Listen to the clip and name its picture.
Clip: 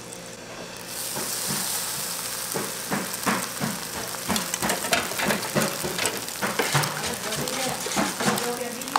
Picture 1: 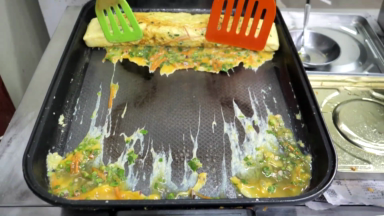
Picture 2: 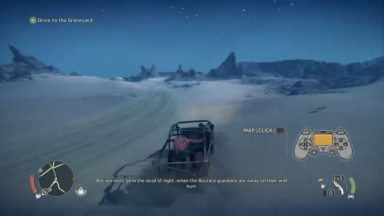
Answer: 1